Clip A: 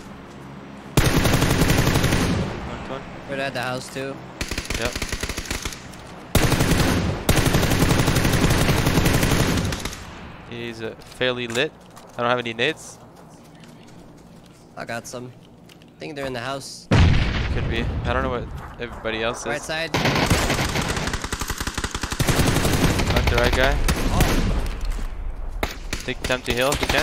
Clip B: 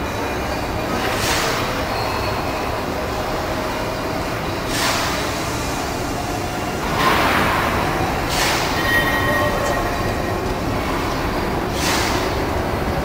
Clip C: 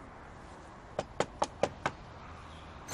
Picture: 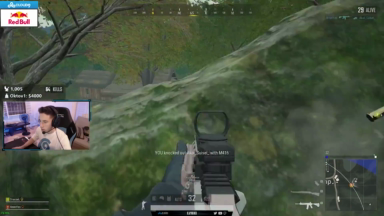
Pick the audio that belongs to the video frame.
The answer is A